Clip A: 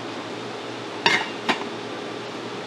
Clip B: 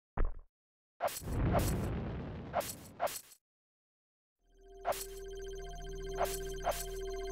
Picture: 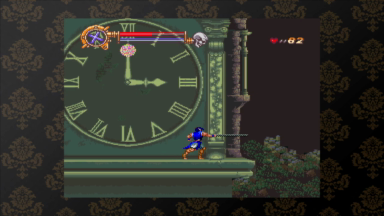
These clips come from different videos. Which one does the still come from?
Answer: B